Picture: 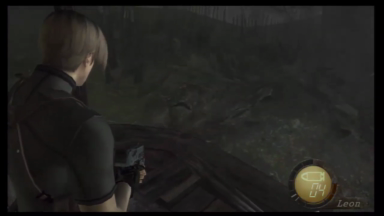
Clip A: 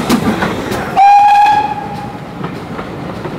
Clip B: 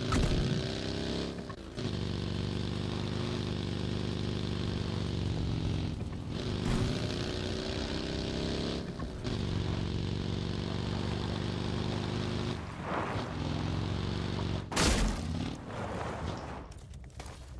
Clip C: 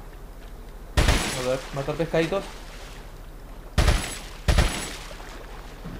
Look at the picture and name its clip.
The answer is C